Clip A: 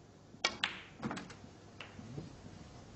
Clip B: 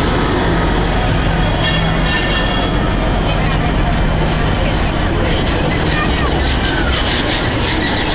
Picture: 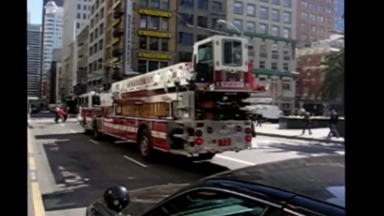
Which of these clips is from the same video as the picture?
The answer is B